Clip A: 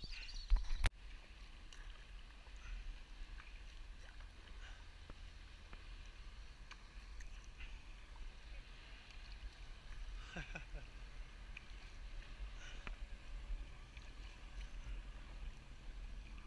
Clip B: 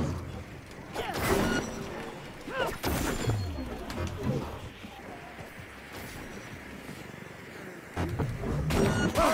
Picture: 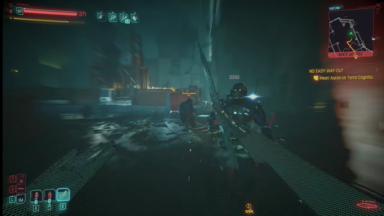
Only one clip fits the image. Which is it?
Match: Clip B